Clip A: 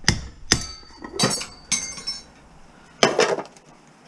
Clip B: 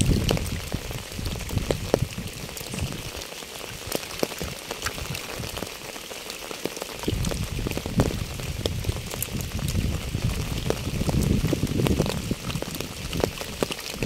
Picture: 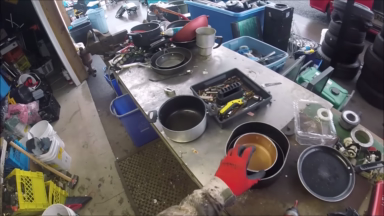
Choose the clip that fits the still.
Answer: A